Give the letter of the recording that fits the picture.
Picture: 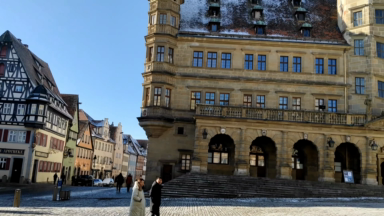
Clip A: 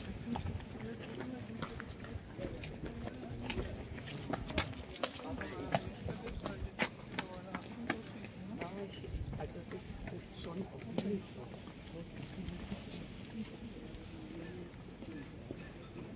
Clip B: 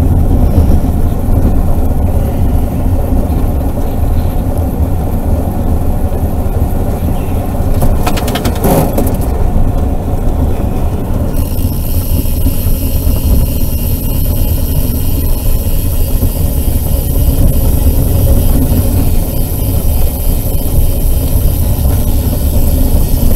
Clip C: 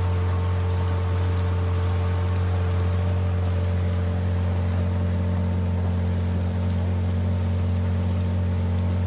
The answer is A